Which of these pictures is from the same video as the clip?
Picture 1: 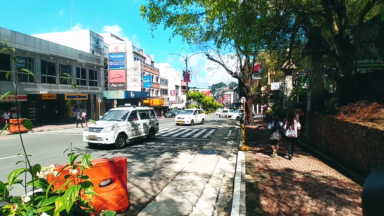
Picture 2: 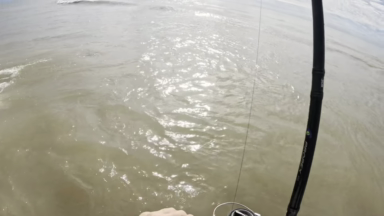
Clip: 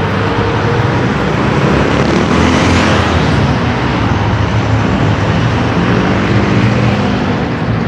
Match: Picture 1